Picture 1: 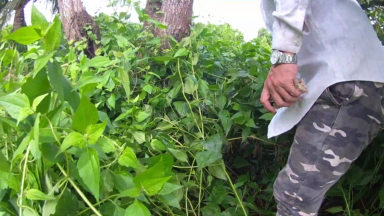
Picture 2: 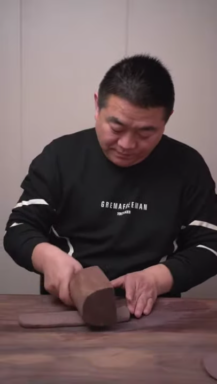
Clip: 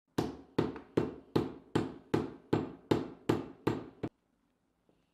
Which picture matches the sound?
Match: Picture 2